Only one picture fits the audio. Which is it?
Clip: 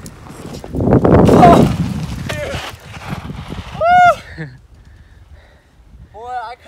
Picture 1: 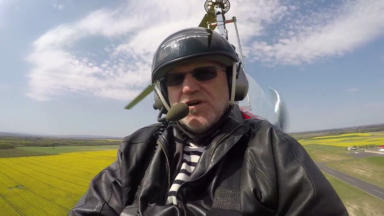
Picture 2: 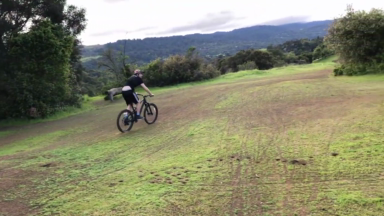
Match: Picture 2